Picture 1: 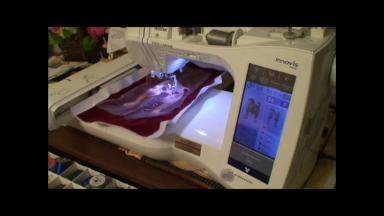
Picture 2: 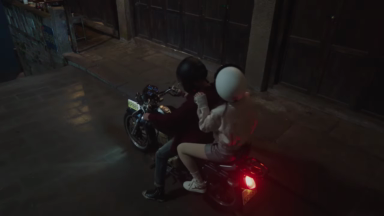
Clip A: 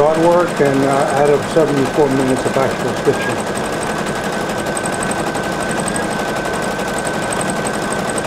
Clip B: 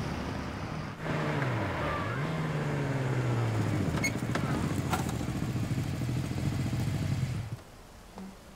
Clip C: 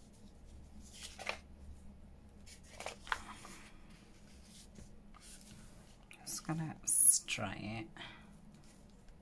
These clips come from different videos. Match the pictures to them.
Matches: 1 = A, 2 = B